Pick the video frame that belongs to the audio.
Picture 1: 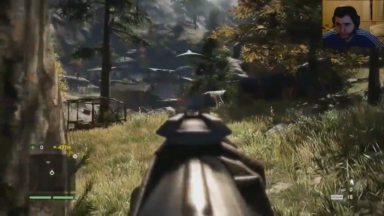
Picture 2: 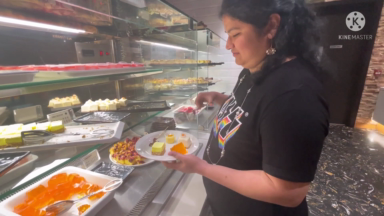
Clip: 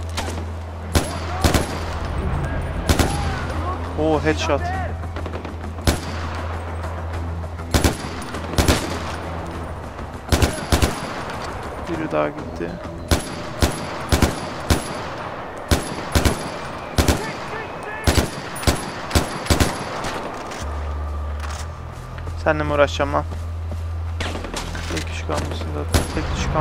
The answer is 1